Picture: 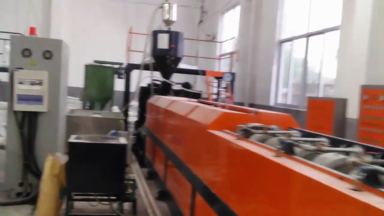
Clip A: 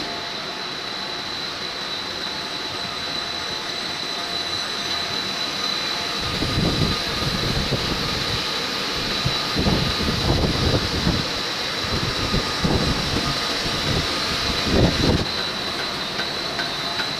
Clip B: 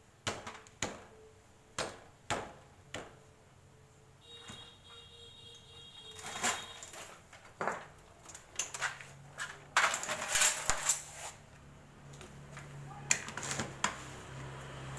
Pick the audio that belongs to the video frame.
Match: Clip A